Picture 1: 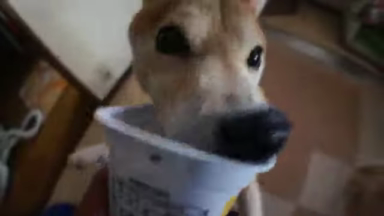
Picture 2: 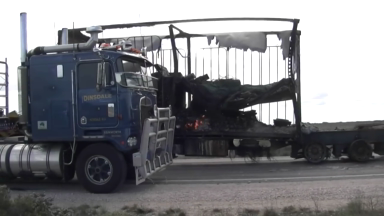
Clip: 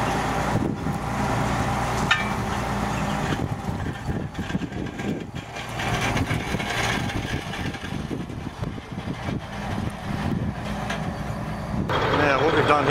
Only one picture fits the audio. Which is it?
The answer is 2